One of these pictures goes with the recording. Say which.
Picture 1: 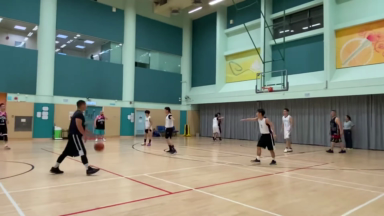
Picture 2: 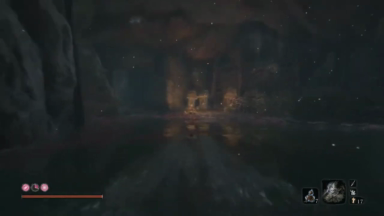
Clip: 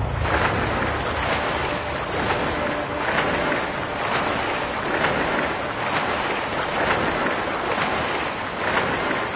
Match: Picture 2